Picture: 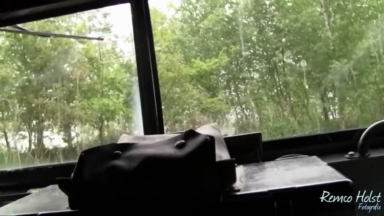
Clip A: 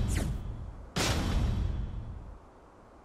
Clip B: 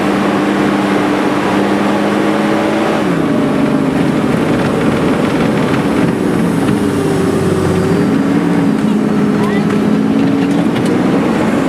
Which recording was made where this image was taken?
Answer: B